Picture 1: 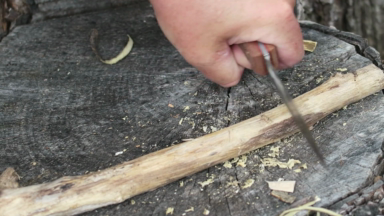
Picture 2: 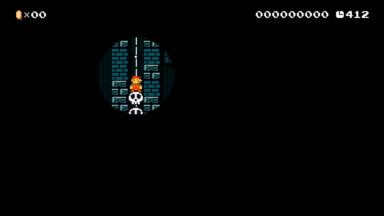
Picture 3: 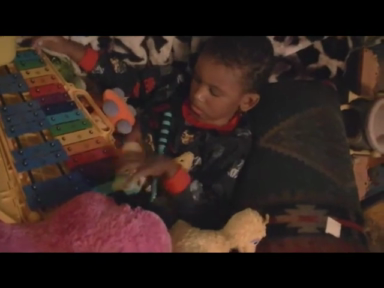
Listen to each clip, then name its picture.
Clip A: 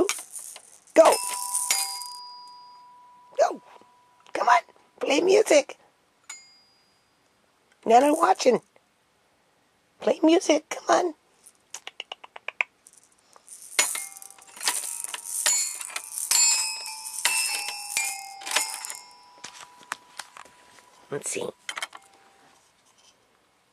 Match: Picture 3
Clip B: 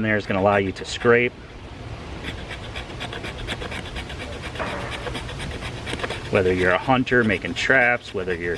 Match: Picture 1